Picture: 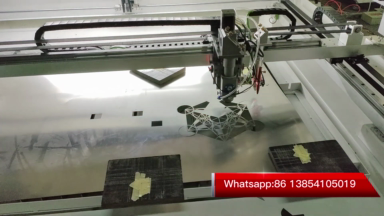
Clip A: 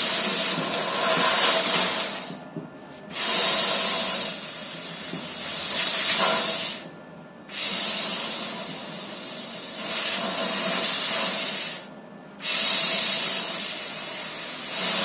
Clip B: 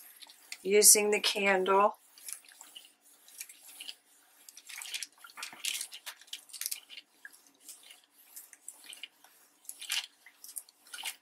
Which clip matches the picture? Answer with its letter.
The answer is A